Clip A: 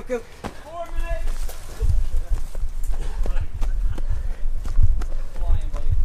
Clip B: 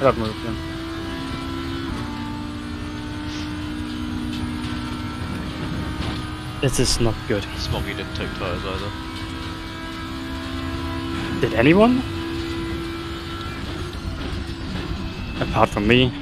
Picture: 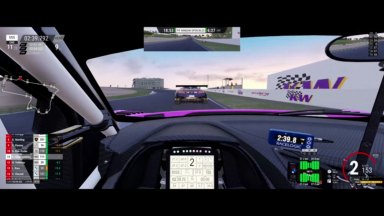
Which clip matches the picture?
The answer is B